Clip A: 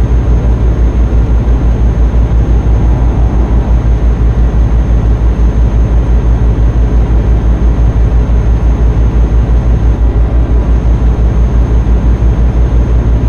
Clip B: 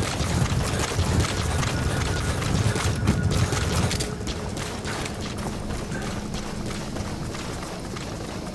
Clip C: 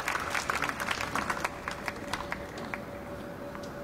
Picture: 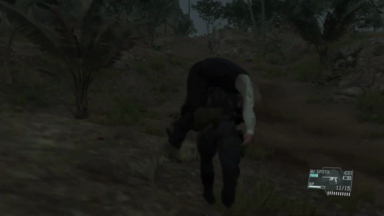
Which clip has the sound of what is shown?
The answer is B